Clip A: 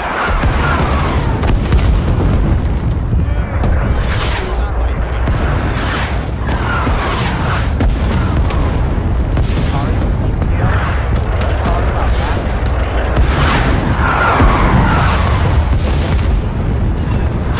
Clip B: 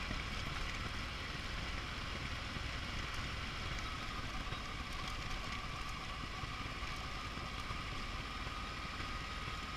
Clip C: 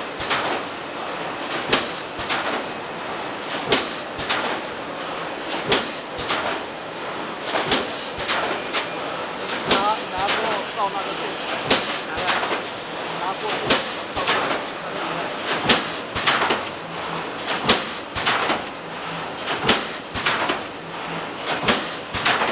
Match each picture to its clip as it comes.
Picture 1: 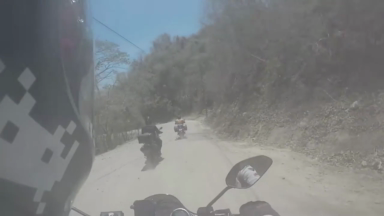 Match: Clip B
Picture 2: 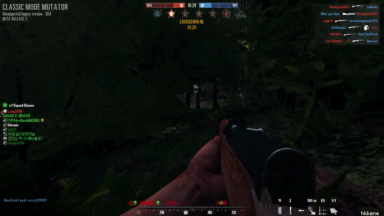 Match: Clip A